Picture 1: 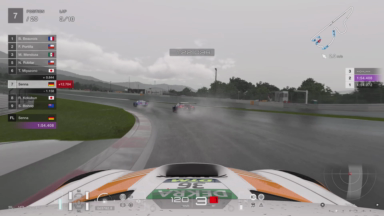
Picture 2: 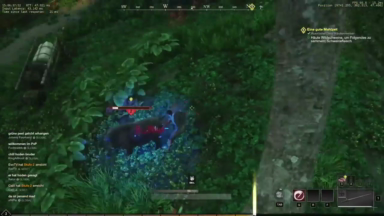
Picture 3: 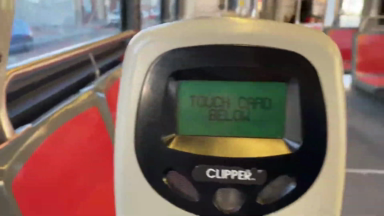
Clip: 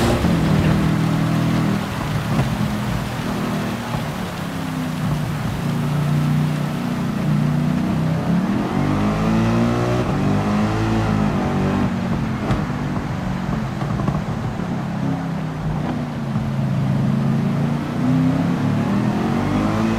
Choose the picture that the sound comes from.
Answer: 1